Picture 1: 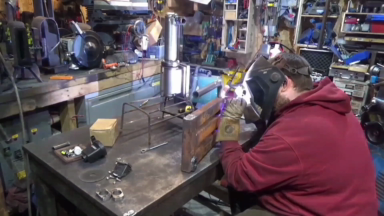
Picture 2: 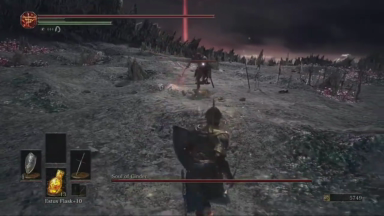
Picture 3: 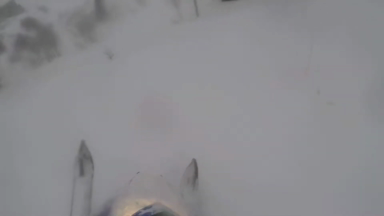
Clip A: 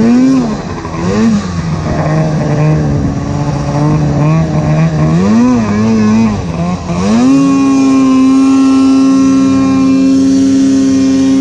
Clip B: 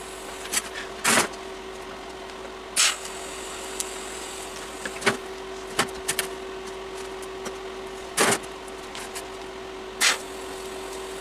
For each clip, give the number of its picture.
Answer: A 3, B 1